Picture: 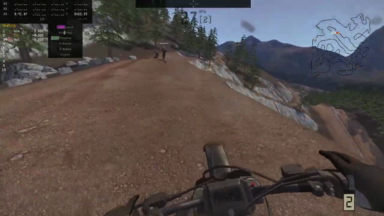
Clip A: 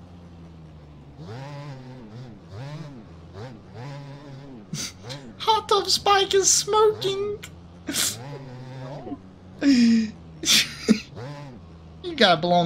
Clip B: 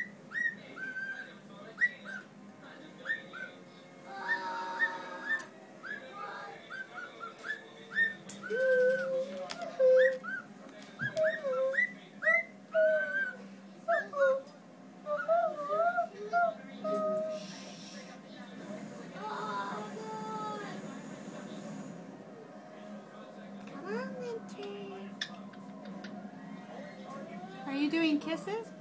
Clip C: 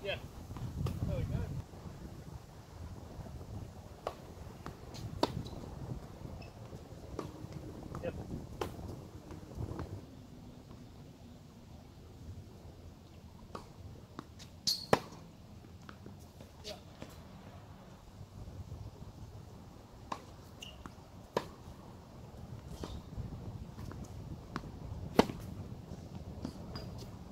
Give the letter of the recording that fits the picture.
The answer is A